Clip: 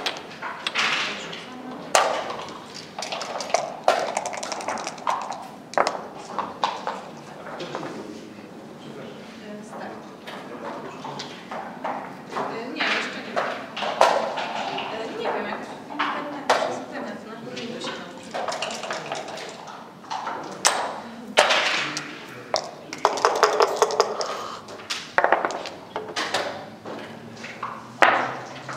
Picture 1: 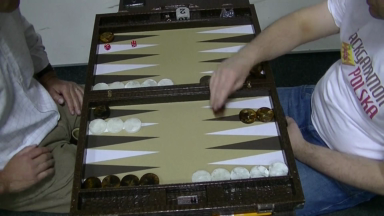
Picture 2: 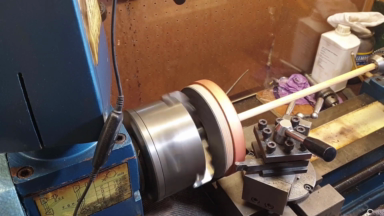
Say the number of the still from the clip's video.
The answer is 1